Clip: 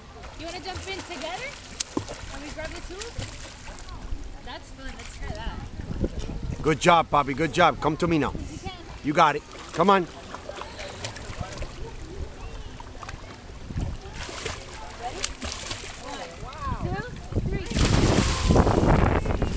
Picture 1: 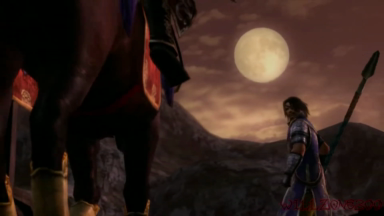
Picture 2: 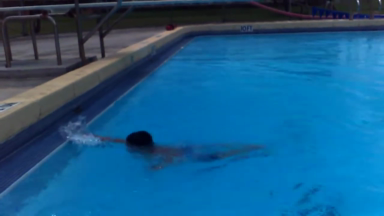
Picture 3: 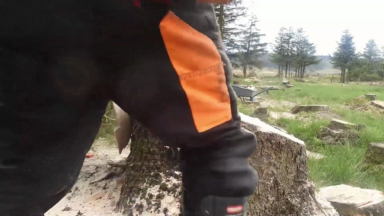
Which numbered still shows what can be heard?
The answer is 2